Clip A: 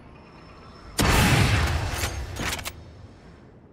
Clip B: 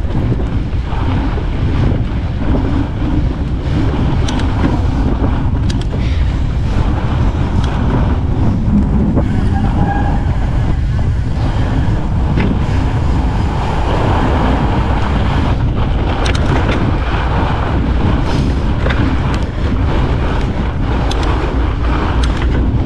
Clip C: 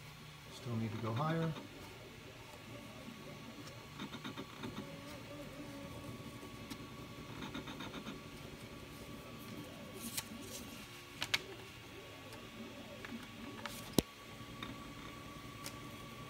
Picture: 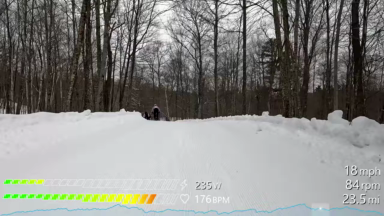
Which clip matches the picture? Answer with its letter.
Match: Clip B